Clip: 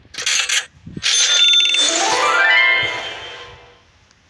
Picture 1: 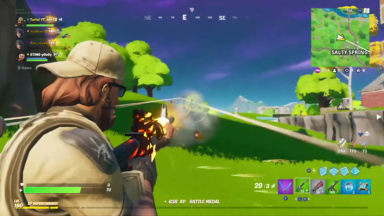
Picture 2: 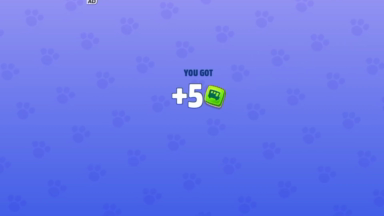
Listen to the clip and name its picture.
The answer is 2